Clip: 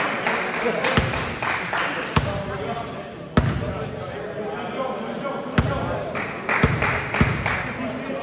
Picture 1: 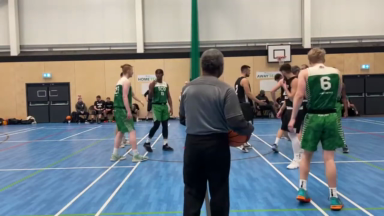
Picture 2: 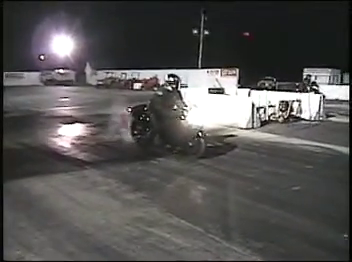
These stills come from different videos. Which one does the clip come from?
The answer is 1